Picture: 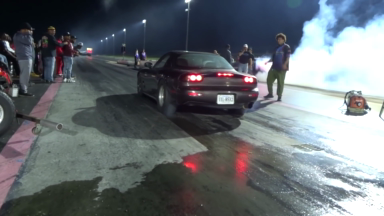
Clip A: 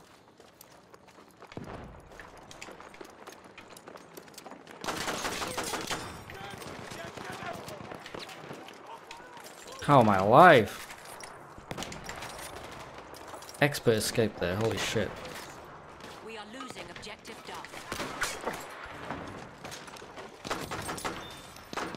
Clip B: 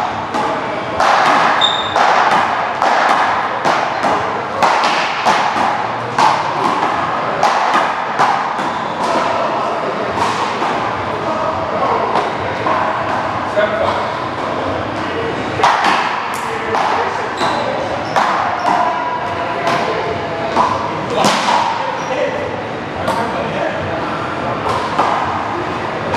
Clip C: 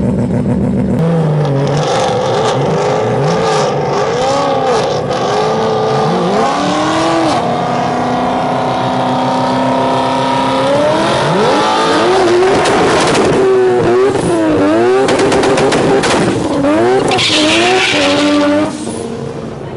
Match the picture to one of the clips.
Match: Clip C